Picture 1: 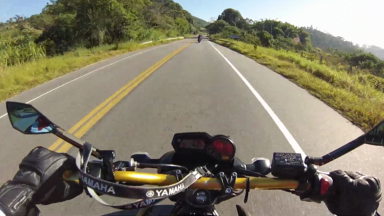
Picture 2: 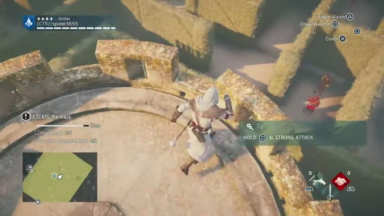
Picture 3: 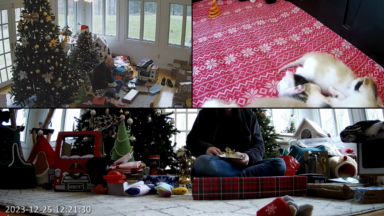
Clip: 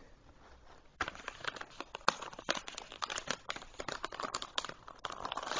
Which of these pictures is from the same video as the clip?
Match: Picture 3